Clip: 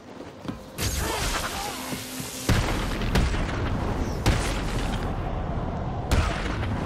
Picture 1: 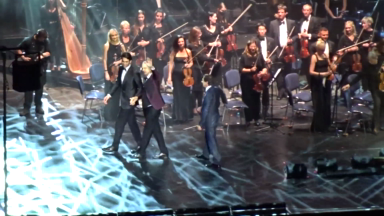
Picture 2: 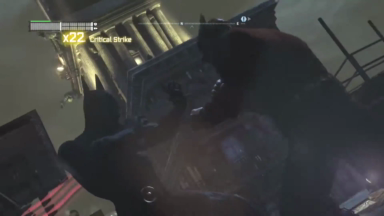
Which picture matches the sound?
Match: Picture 2